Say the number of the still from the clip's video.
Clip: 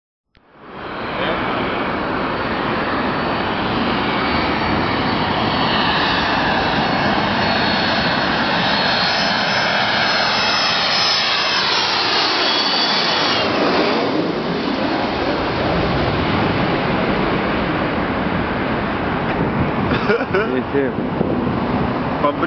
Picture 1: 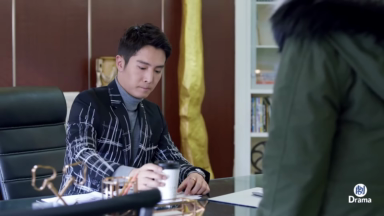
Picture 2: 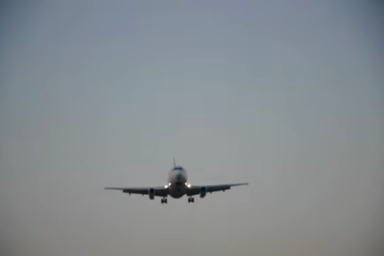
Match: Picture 2